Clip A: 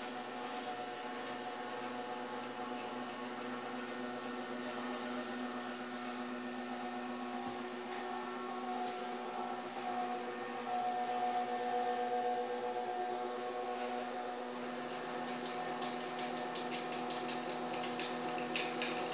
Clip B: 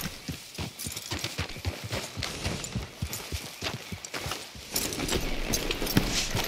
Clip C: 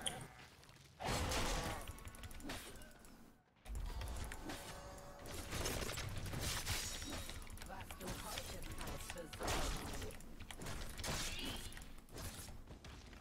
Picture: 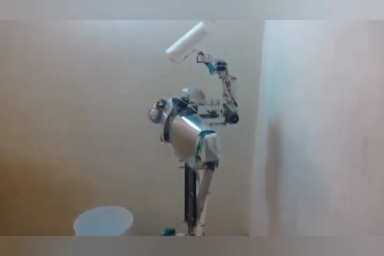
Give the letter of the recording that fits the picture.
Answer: A